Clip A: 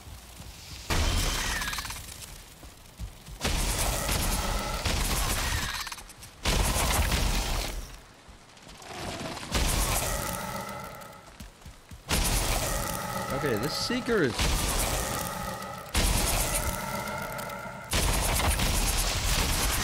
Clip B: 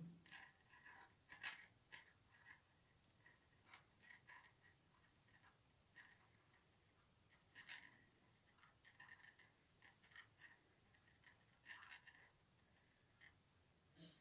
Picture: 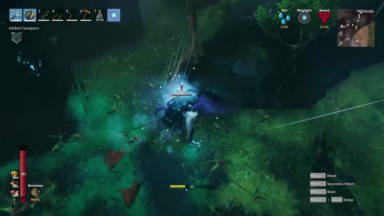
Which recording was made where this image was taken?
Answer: A